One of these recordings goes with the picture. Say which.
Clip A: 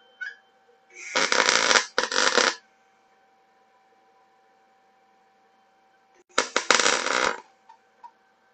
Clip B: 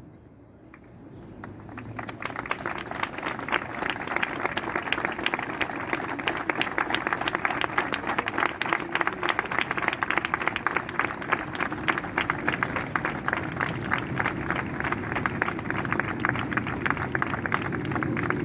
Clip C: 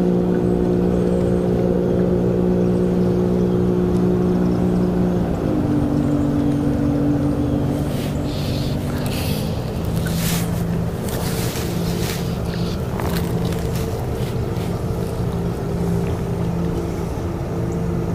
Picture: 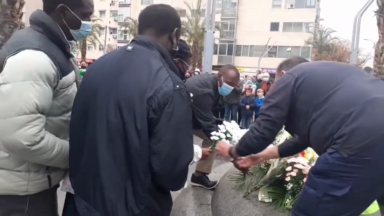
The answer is B